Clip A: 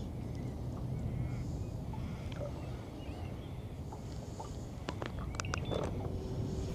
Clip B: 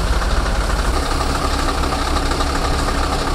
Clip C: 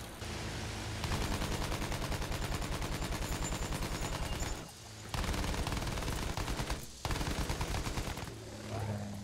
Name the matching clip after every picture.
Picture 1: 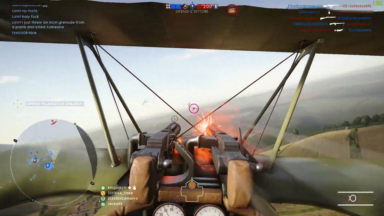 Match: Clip C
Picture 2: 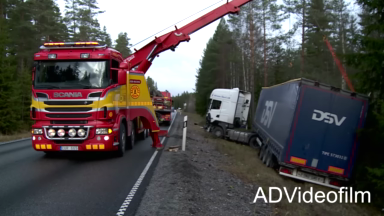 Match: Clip B